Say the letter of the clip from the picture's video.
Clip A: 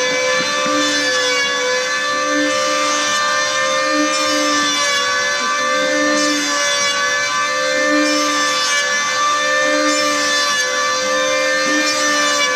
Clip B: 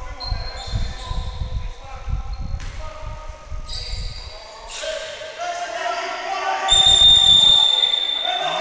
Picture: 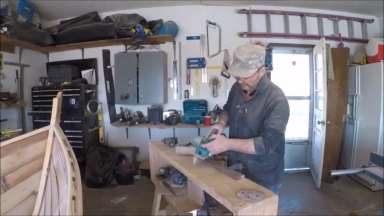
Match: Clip A